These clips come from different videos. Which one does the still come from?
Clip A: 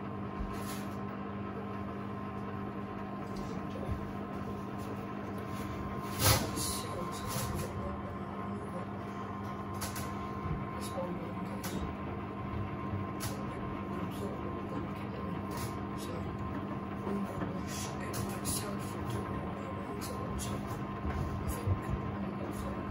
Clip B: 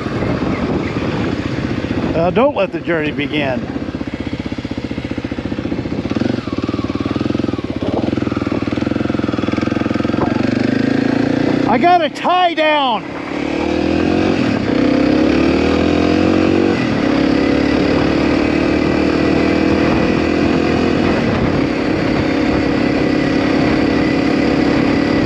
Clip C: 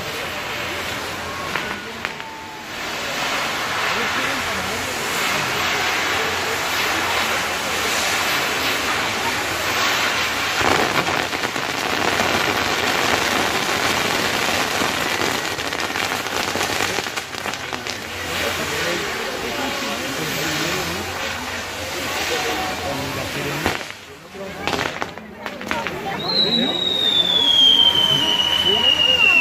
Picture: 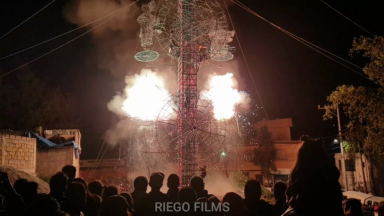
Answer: C